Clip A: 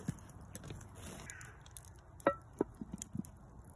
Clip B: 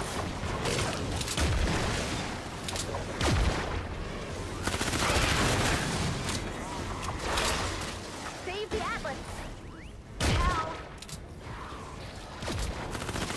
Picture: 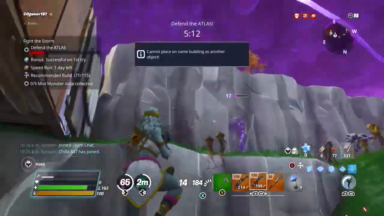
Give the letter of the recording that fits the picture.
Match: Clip B